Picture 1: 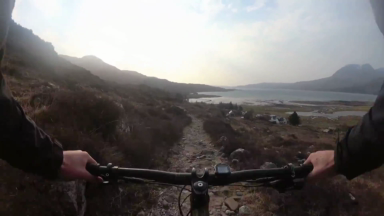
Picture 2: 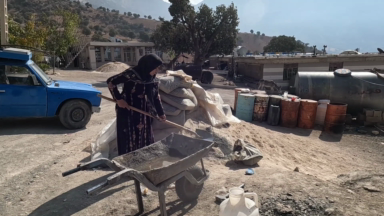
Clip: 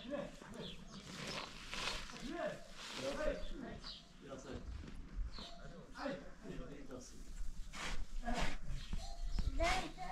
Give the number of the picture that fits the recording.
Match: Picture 2